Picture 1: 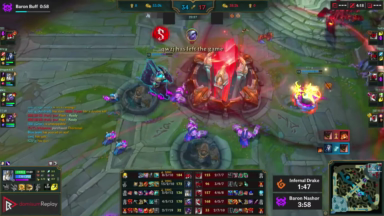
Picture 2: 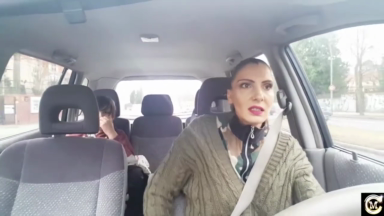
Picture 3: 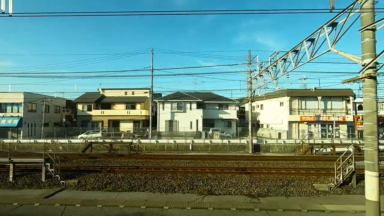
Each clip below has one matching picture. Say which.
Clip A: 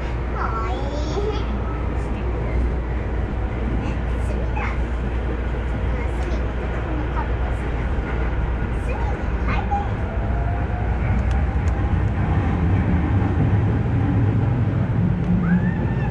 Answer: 3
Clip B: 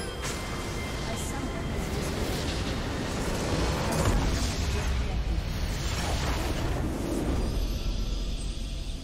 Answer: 1